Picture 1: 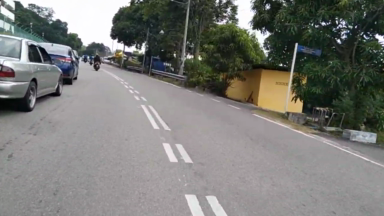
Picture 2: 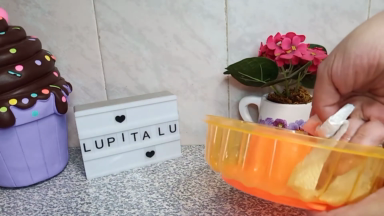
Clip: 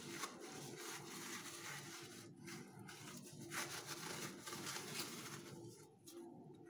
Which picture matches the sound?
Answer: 2